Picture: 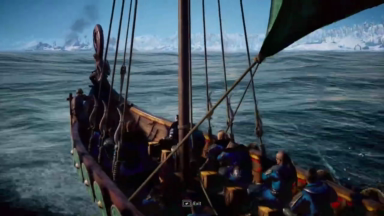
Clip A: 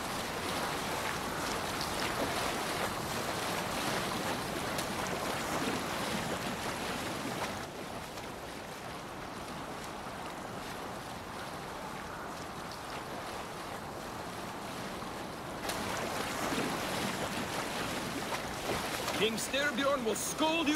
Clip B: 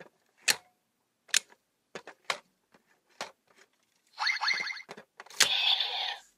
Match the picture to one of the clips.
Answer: A